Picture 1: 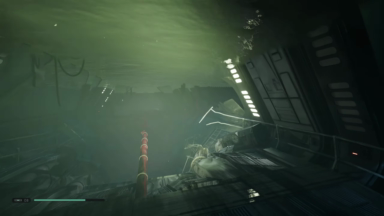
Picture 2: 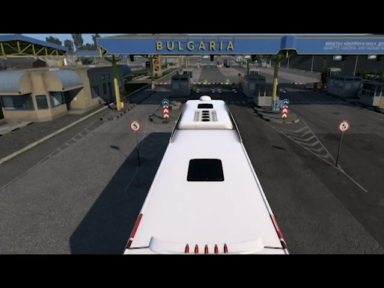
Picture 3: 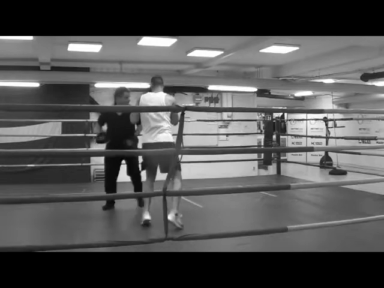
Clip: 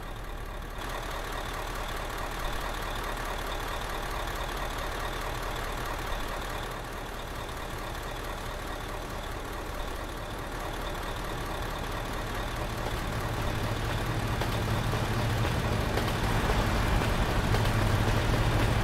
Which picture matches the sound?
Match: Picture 2